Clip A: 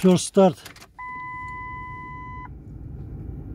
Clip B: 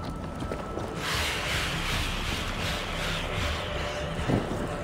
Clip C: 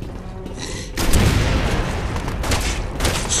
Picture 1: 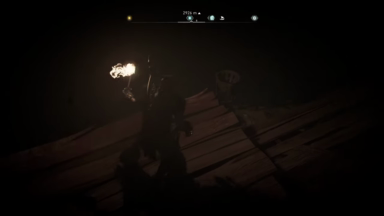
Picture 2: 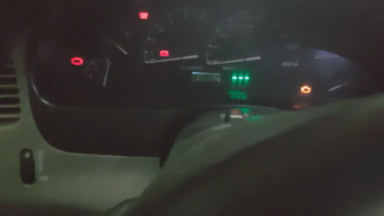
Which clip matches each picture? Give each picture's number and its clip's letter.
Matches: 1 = B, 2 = A